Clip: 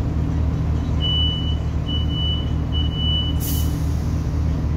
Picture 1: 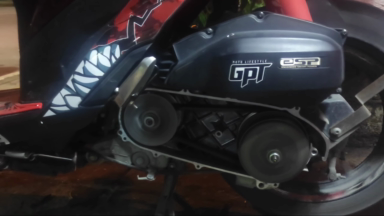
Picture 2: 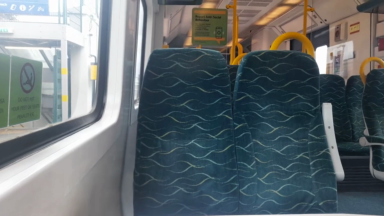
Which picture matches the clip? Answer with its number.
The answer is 2